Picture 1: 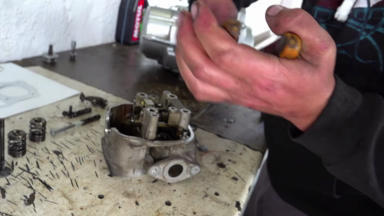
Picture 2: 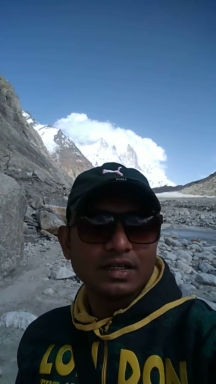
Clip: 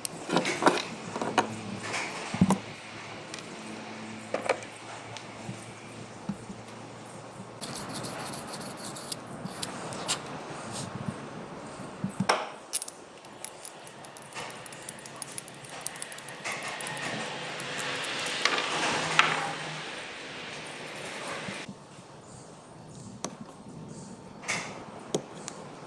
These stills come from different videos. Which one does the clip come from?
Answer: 1